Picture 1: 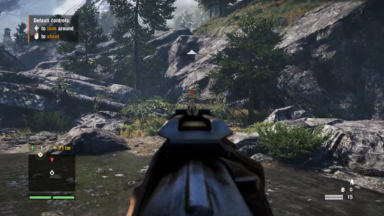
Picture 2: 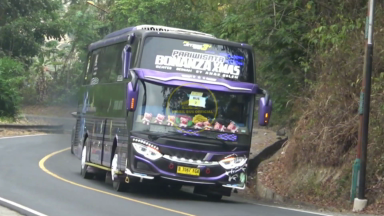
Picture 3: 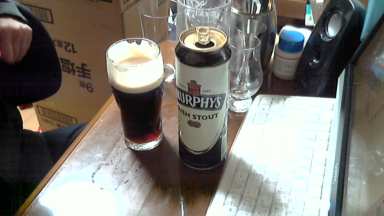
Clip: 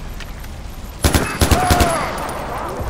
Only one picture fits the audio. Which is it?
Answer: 1